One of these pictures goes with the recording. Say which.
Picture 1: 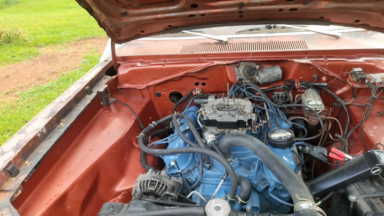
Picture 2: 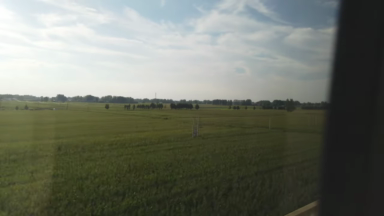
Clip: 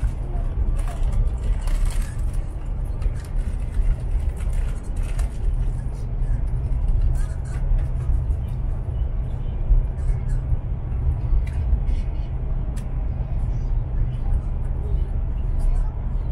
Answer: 2